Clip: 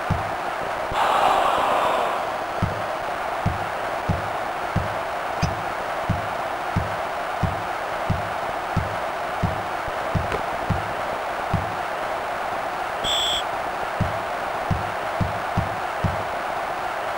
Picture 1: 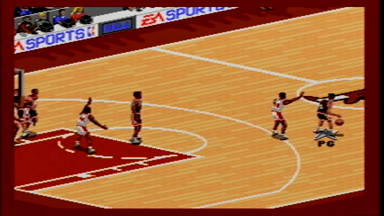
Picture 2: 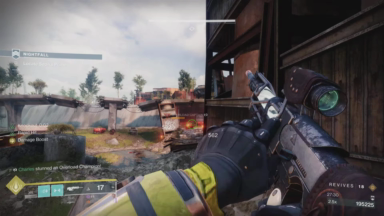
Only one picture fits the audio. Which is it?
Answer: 1